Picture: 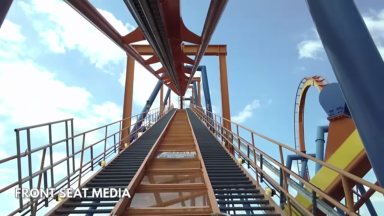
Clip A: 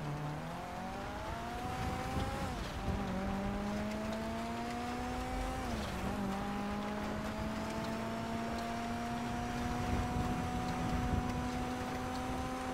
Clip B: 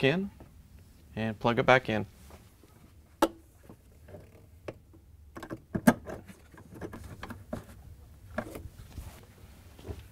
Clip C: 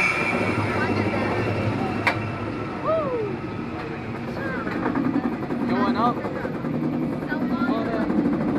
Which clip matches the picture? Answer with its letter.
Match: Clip C